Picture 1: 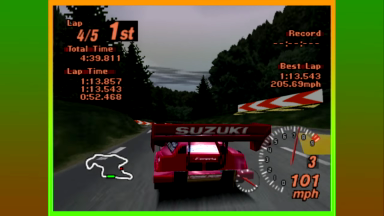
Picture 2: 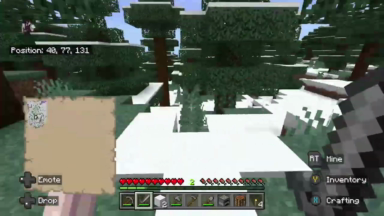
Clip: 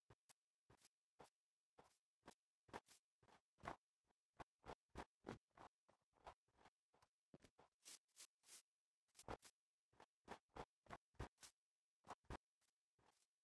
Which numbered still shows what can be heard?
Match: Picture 2